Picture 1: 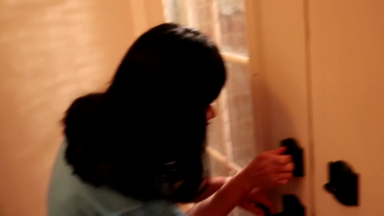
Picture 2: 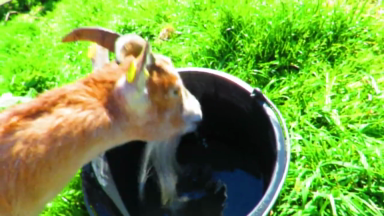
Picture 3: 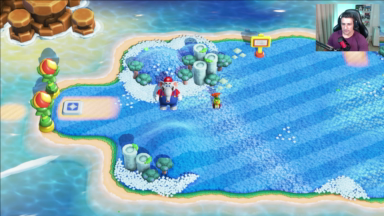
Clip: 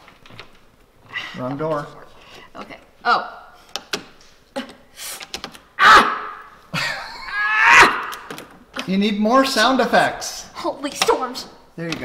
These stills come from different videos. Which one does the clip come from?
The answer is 1